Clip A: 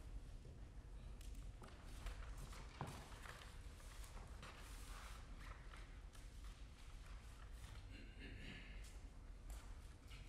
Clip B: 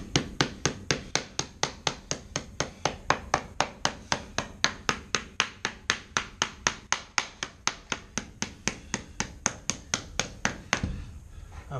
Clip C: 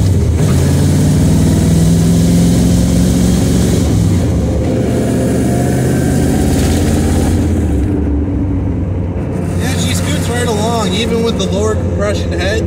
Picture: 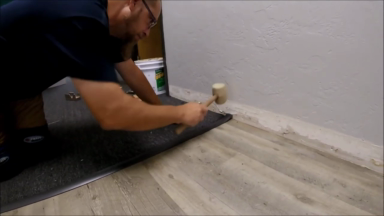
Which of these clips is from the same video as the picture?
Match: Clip B